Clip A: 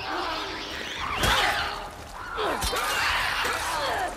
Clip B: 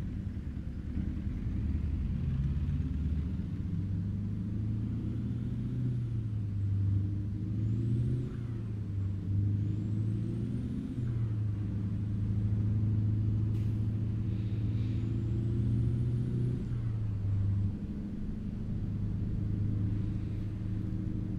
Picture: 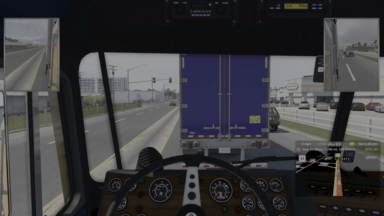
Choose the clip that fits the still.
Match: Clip B